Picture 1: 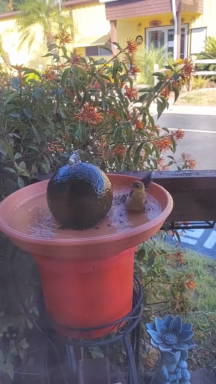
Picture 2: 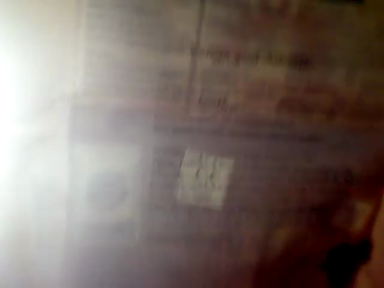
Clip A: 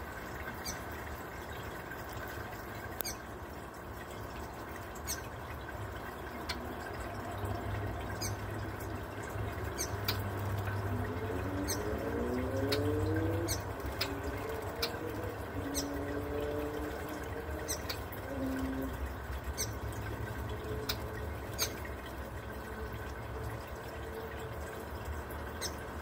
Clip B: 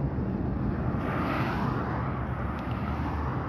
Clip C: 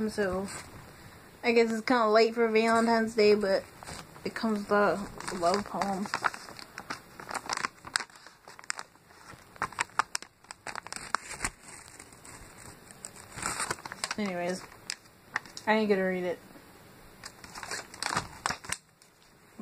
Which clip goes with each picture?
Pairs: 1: A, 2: C